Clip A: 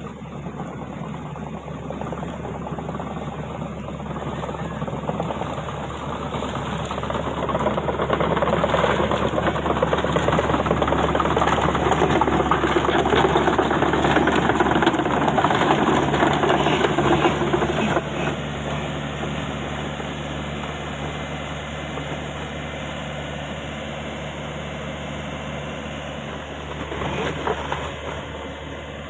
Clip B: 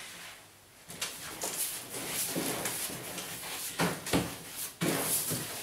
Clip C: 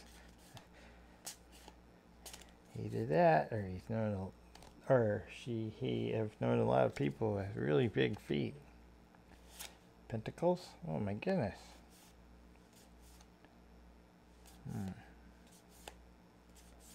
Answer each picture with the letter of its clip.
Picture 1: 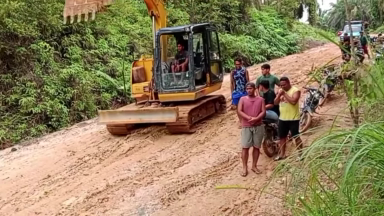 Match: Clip A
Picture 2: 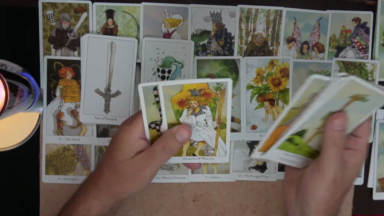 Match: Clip C